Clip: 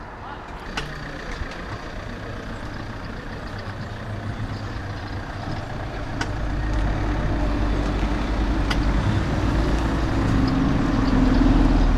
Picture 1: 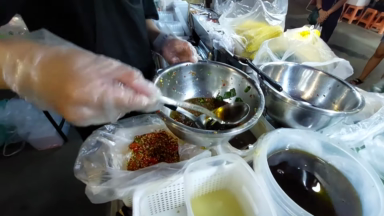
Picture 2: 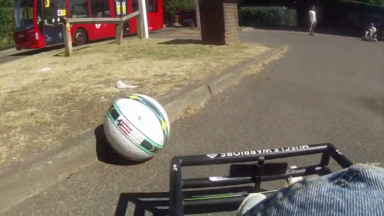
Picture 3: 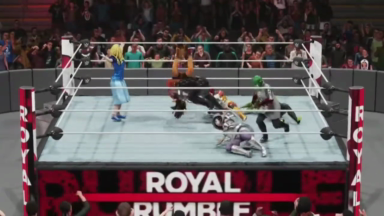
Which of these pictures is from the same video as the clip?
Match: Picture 2